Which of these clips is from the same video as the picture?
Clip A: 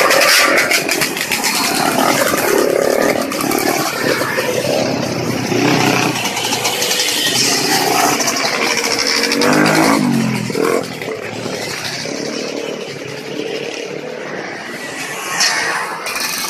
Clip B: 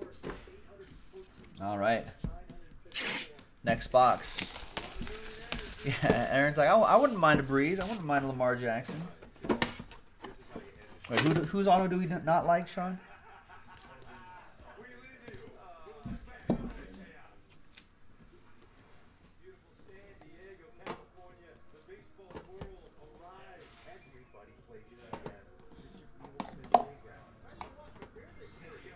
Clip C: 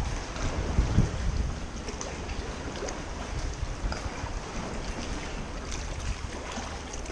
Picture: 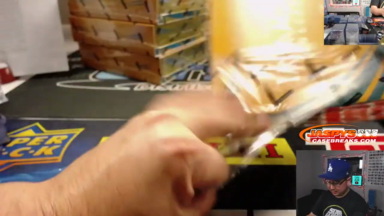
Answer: B